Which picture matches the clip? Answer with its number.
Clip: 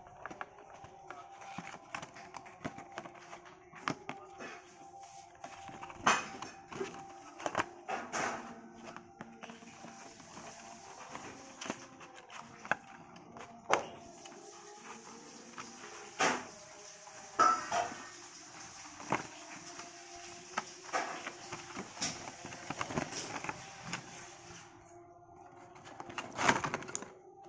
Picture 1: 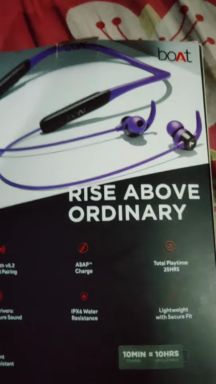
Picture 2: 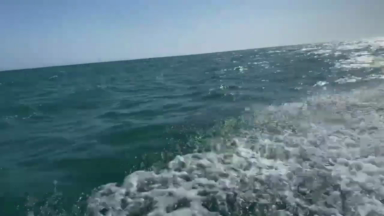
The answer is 1